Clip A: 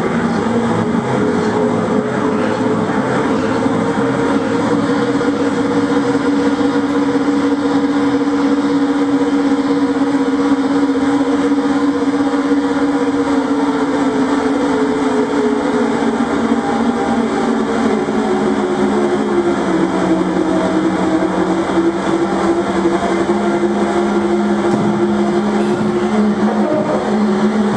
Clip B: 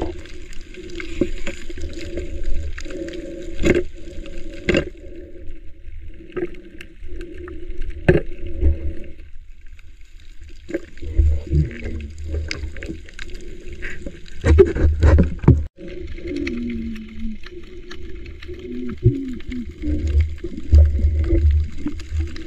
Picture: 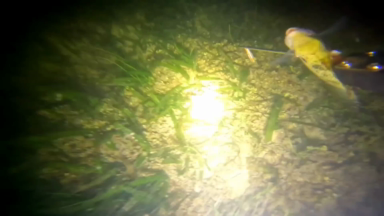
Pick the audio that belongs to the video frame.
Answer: B